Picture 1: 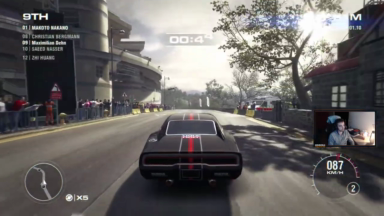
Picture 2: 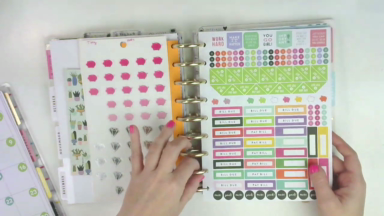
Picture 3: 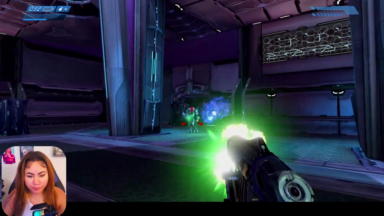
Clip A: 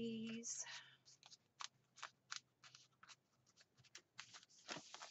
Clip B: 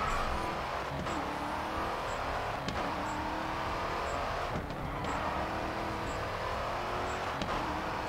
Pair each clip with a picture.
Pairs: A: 2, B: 1